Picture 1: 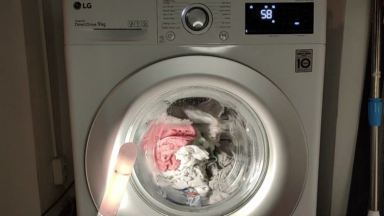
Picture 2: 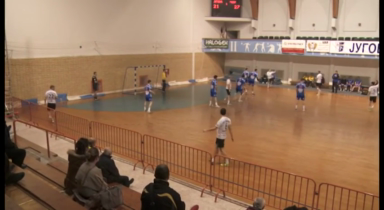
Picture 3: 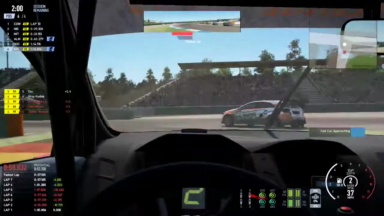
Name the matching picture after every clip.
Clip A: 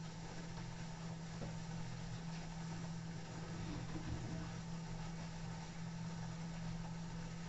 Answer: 1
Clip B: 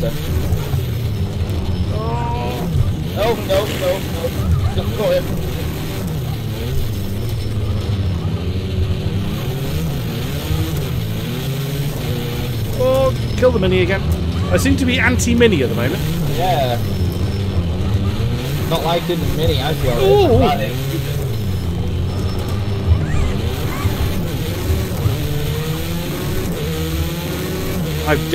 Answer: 3